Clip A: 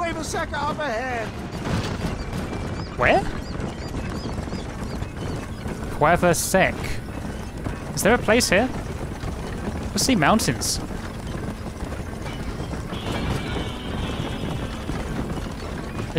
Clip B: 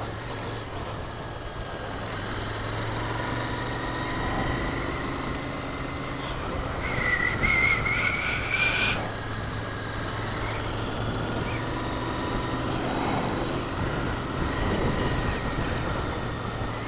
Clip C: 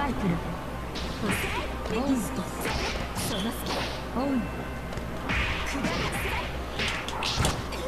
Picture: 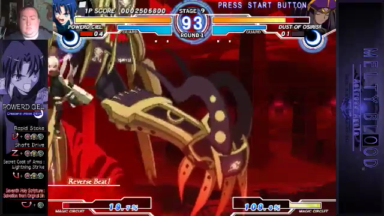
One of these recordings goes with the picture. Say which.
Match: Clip C